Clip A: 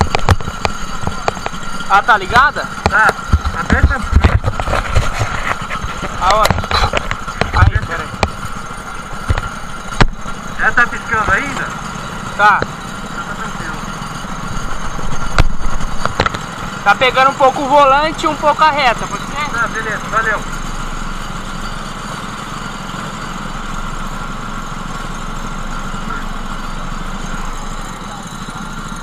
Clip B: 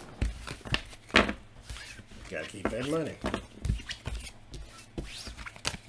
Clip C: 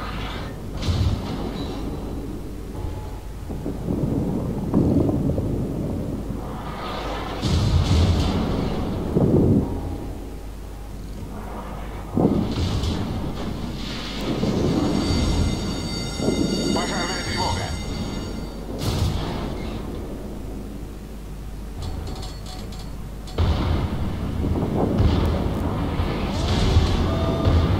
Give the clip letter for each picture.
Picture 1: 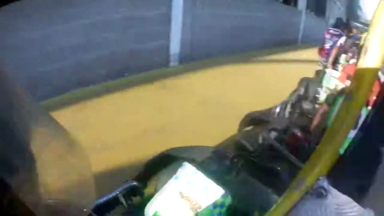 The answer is A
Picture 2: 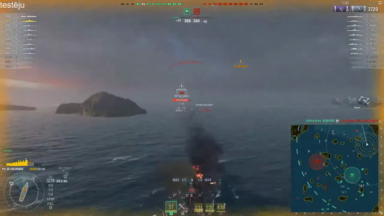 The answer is C